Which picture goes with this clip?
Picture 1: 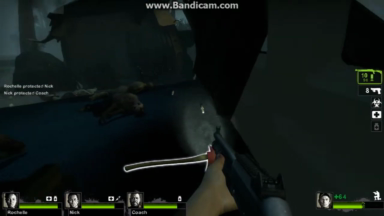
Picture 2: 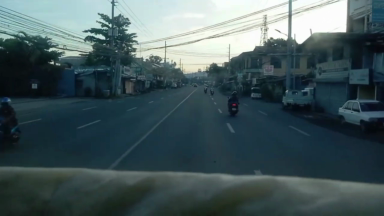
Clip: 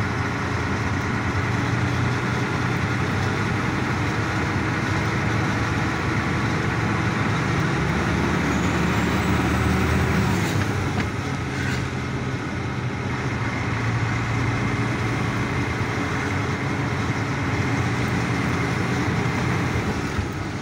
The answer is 2